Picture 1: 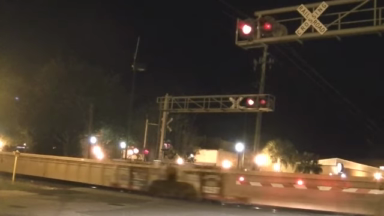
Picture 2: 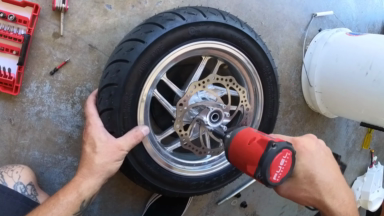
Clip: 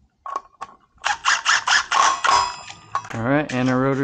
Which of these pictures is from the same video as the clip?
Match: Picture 2